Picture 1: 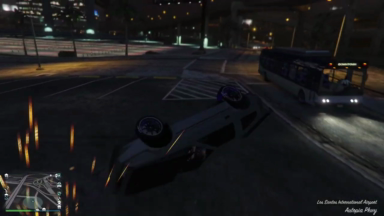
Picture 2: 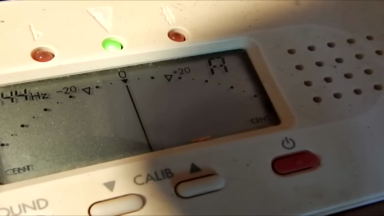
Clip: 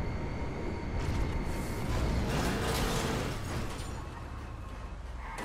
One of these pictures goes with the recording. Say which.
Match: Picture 1